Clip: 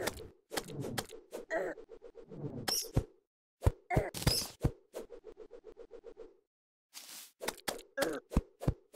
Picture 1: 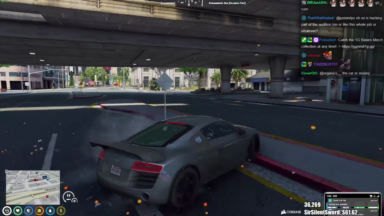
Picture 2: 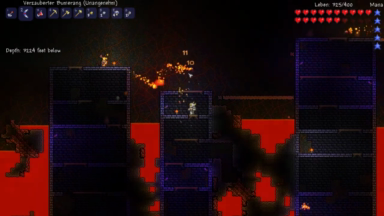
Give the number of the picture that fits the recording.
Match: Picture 2